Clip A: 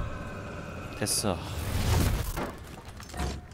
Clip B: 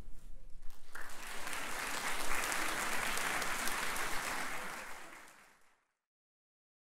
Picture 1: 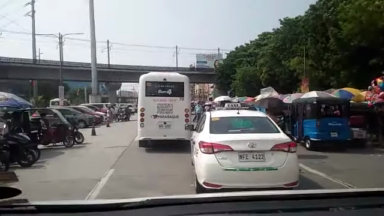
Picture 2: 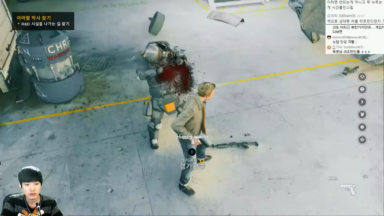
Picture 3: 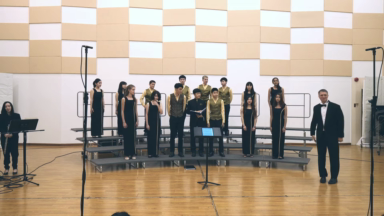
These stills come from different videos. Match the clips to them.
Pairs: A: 2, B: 3